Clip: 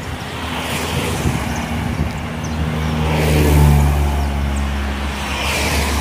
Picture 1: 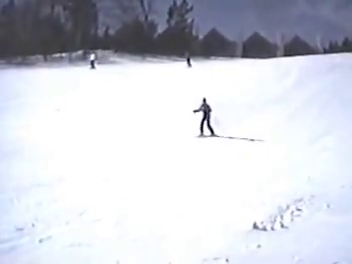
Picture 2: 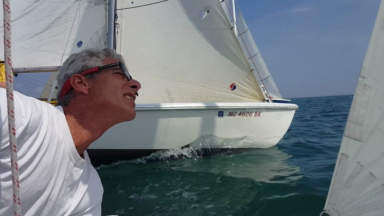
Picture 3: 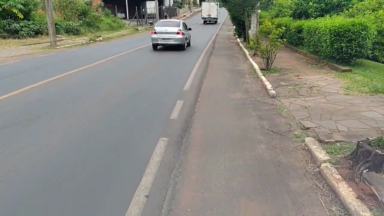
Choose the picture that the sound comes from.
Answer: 3